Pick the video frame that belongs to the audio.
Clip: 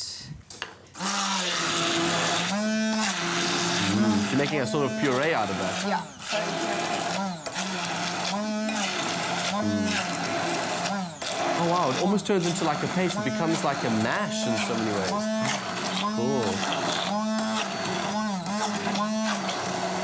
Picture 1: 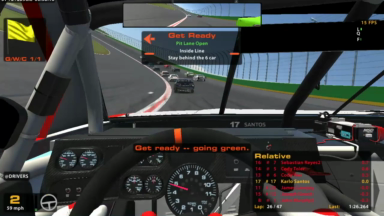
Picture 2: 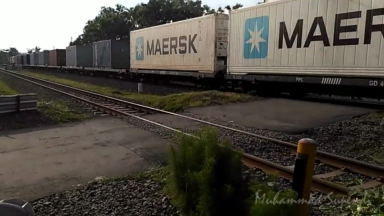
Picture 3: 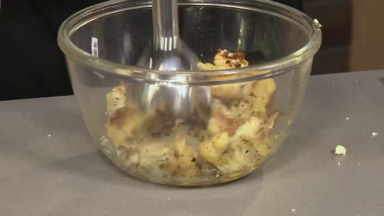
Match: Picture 3